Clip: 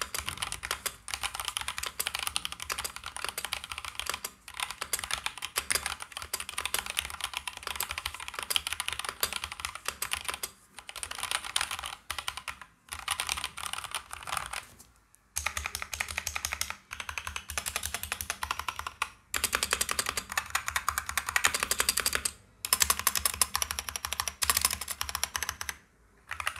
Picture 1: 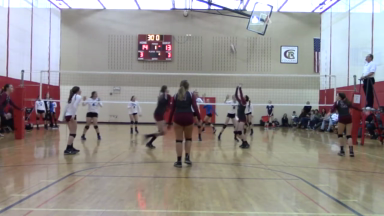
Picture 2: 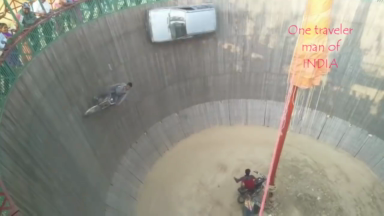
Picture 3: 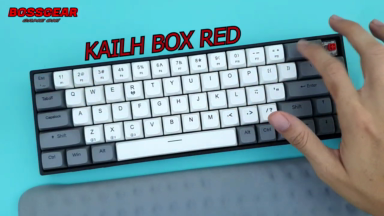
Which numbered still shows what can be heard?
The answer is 3